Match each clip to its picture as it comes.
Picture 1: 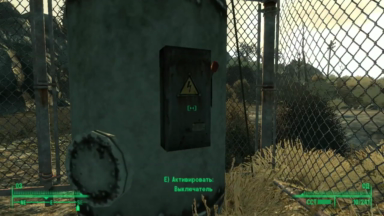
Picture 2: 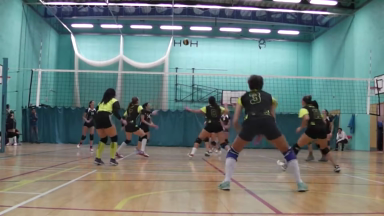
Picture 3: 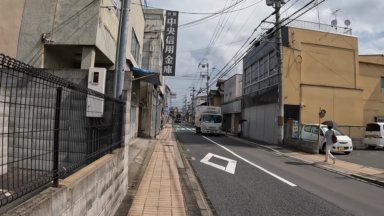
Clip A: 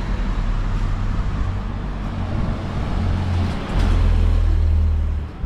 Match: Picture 3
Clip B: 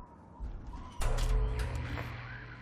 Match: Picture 1